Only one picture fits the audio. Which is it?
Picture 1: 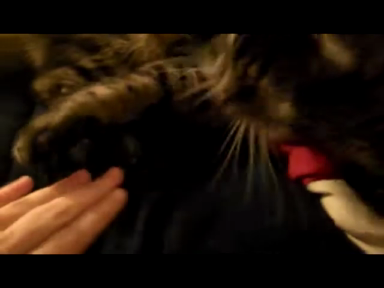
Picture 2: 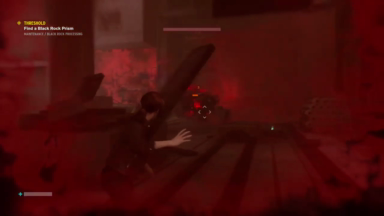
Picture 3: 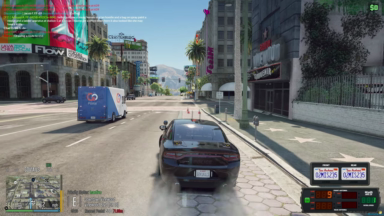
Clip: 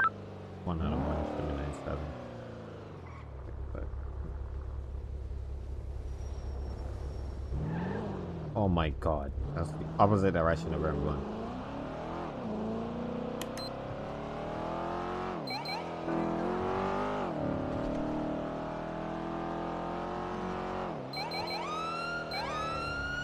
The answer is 3